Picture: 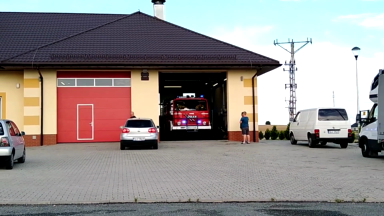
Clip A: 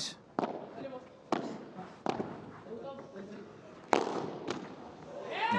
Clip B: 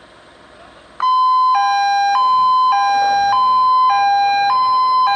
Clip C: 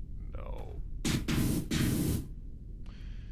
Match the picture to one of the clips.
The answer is B